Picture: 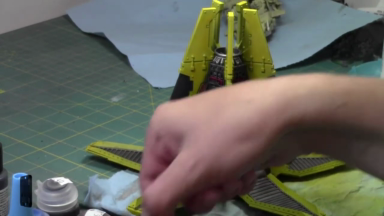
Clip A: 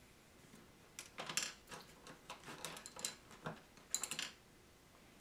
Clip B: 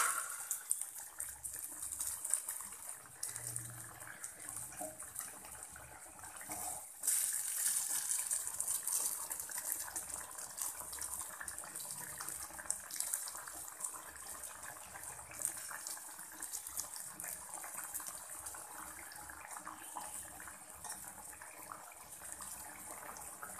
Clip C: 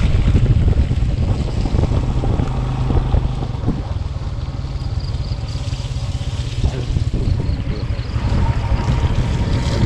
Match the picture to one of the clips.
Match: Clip A